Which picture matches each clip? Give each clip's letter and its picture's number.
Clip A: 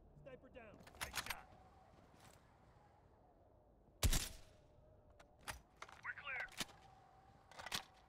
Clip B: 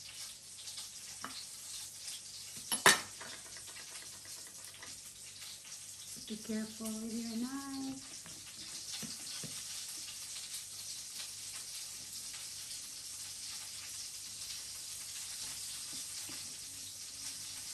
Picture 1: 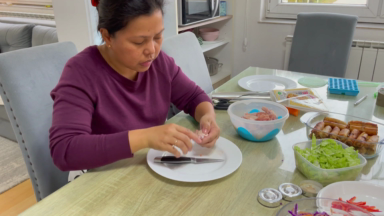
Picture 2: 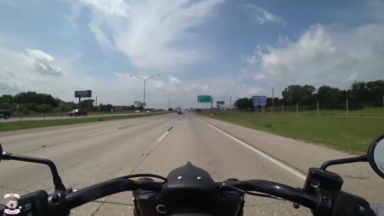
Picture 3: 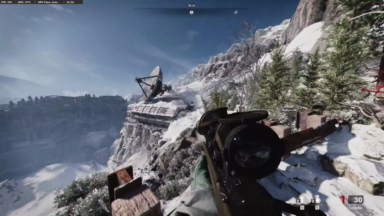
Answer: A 3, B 1